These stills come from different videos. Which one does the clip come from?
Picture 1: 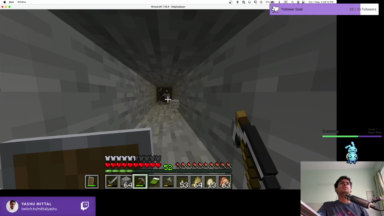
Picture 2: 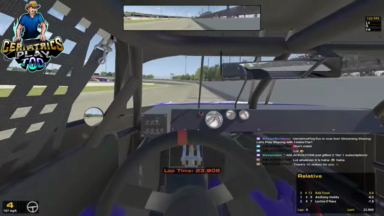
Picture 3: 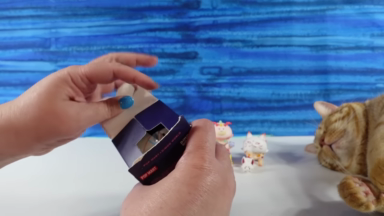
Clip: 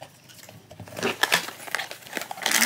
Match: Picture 3